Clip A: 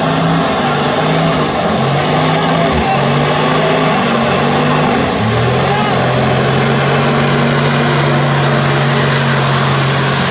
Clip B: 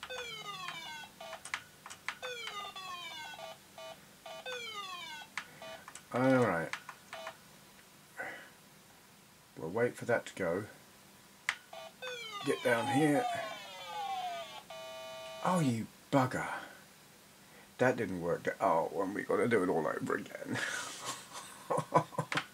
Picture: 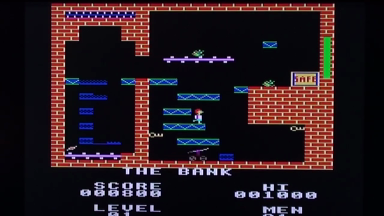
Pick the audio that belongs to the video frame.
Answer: B